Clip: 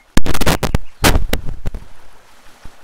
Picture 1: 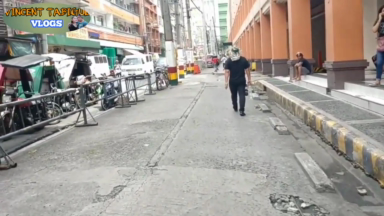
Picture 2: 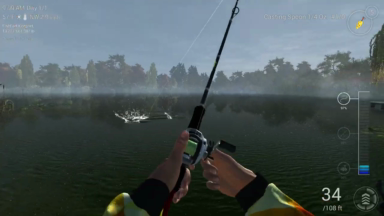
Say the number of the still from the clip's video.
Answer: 2